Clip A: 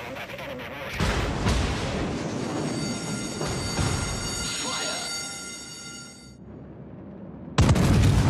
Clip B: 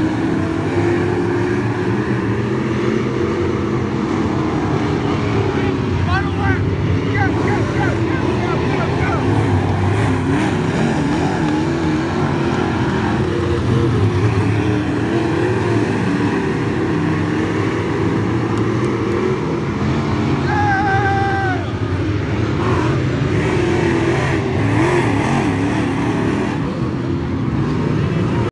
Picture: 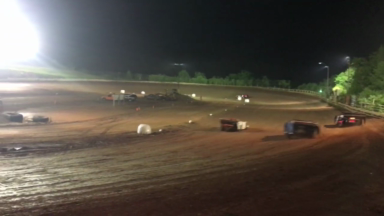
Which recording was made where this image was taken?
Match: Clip B